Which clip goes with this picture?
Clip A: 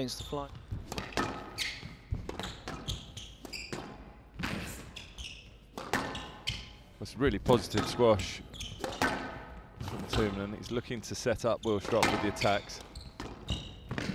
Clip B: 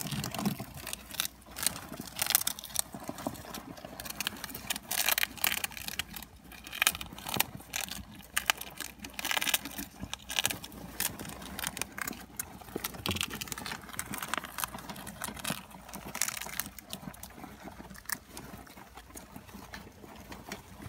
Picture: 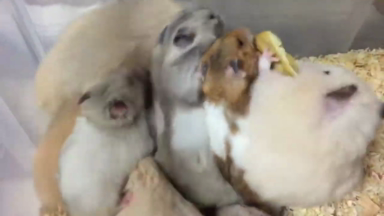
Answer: B